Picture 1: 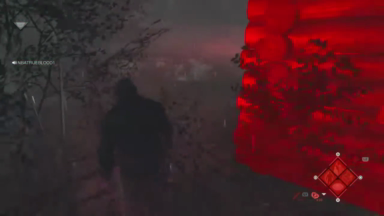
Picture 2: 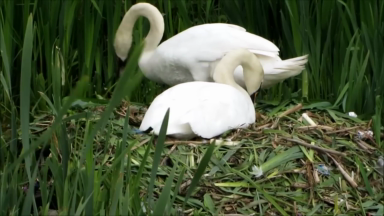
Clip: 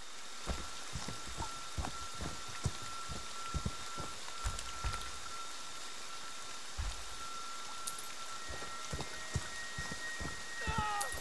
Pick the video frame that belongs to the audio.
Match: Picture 1